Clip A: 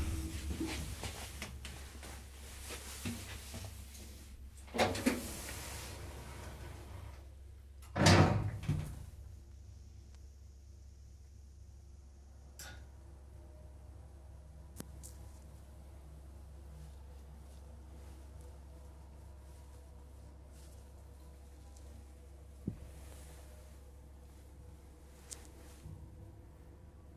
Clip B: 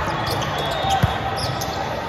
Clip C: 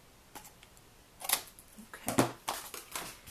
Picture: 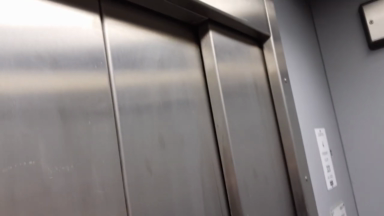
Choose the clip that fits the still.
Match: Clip A